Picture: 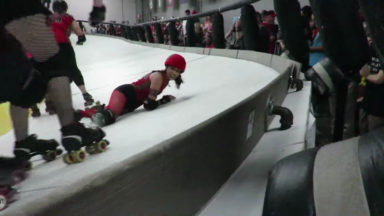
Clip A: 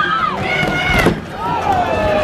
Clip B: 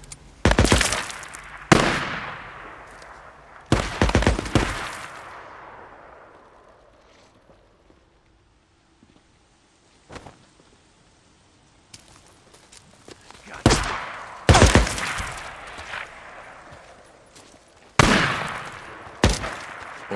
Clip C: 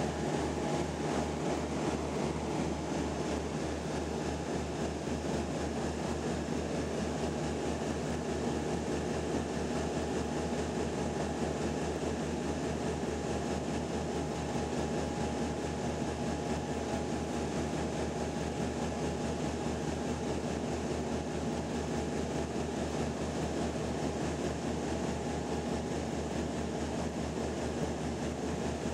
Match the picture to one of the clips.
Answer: A